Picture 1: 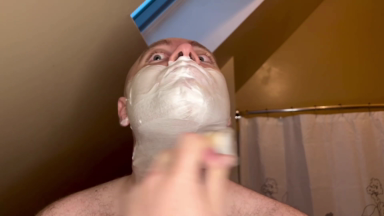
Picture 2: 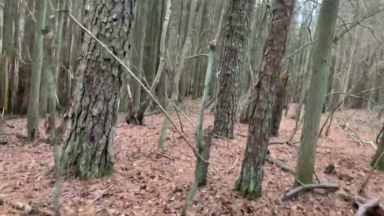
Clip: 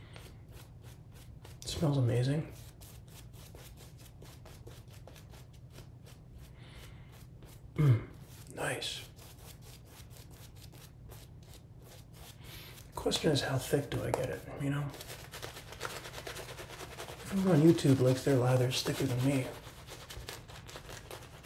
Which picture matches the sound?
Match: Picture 1